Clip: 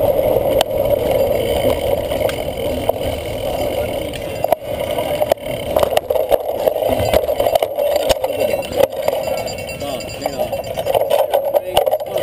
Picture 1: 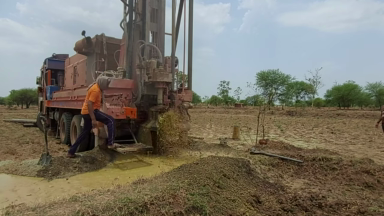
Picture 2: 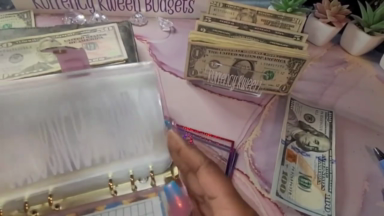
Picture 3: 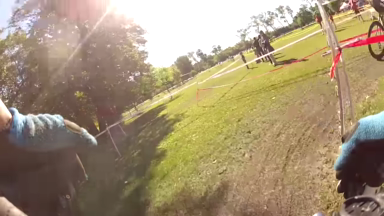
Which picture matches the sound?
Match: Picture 3